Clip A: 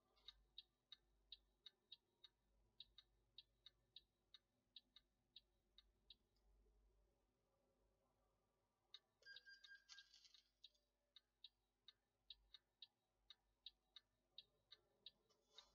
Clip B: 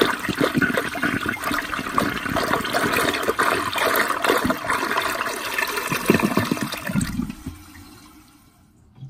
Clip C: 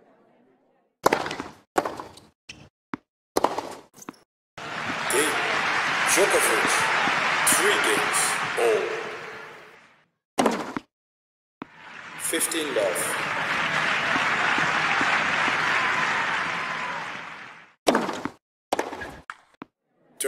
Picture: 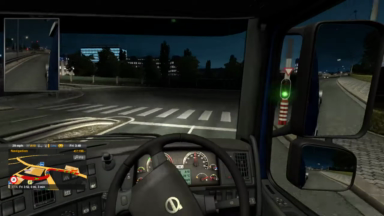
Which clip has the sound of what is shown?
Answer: A